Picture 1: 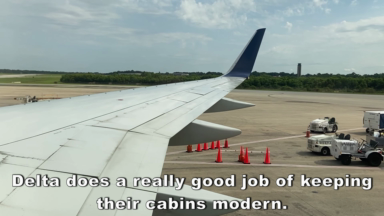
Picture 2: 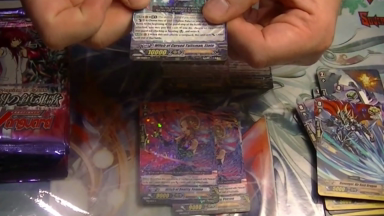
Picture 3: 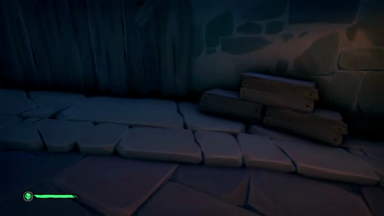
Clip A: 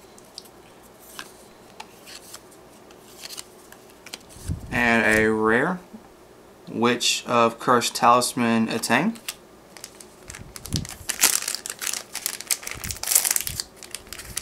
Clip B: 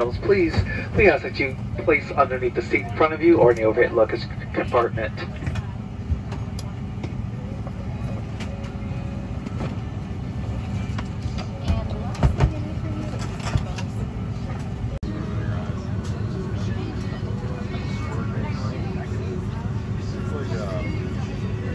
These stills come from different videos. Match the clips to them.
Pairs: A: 2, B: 1